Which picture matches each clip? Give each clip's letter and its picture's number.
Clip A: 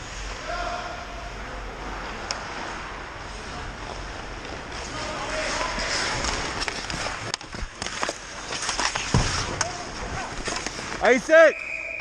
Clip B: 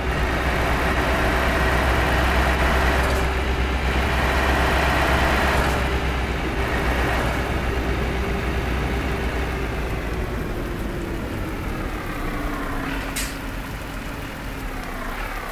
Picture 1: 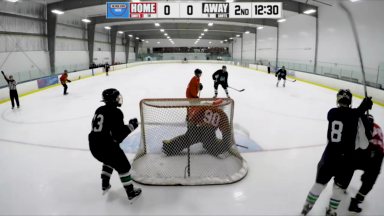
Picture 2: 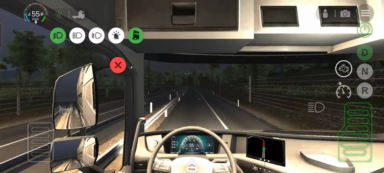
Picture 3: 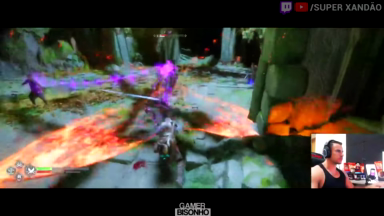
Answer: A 1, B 2